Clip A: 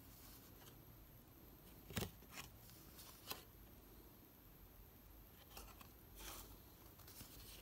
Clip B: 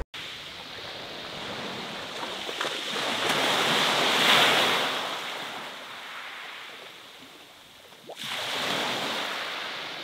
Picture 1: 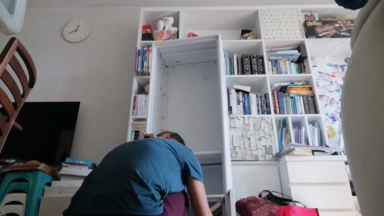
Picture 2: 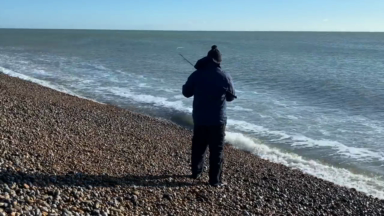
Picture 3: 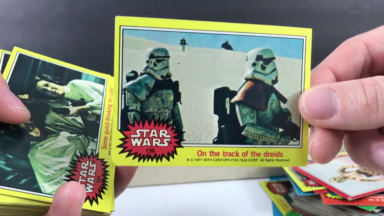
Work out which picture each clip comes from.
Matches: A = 3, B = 2